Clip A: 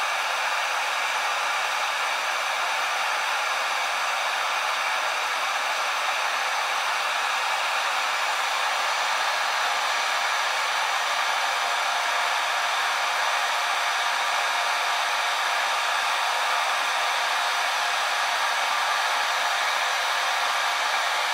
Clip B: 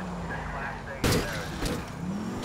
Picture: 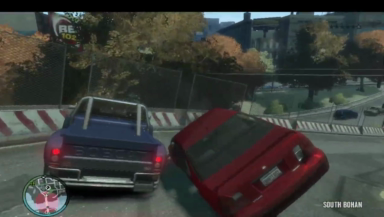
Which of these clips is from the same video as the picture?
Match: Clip B